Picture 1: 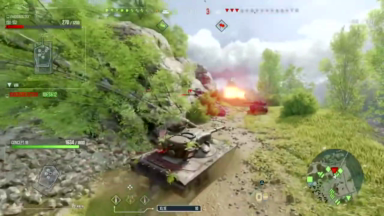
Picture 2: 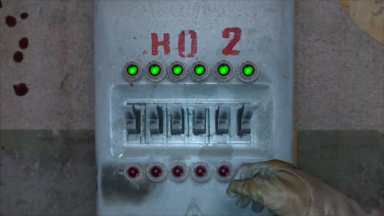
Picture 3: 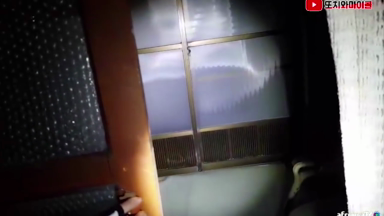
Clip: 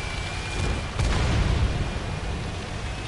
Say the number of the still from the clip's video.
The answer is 1